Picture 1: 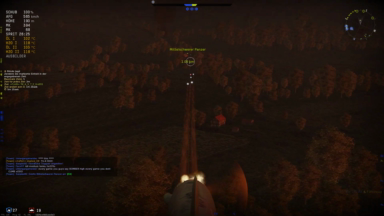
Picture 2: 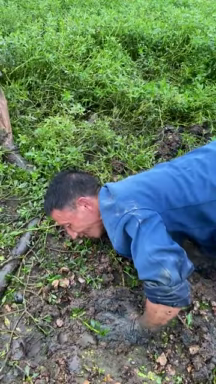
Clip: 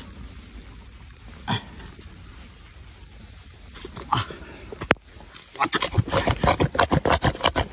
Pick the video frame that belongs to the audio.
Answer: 2